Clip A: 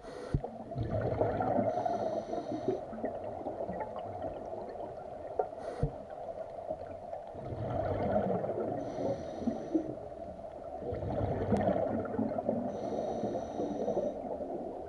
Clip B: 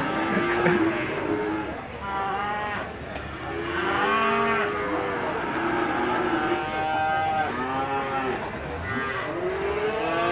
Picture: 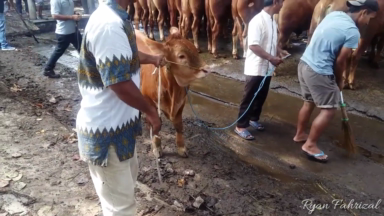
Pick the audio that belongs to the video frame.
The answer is B